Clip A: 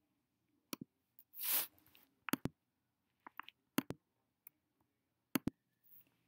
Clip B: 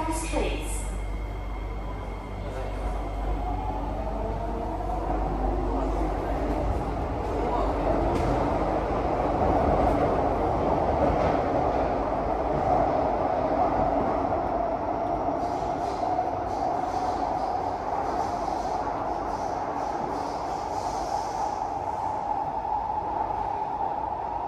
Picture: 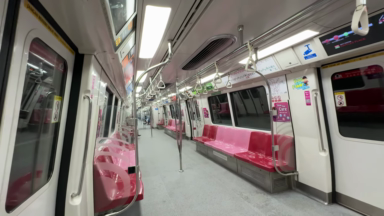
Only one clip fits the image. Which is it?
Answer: B